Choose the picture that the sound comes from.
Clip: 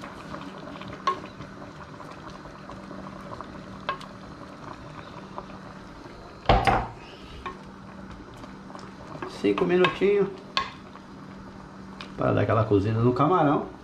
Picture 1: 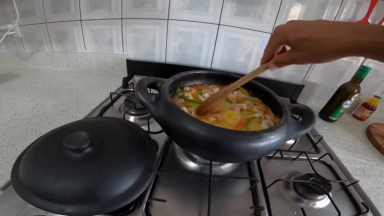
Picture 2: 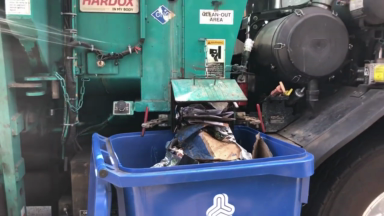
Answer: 1